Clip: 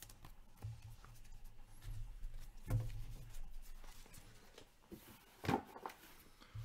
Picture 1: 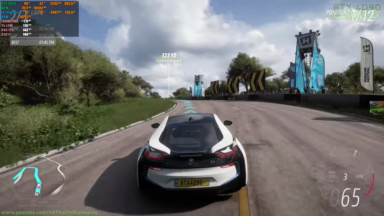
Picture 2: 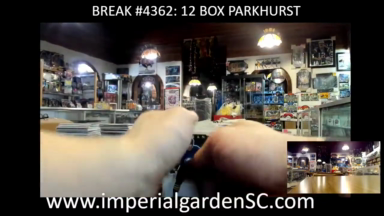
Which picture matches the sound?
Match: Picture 2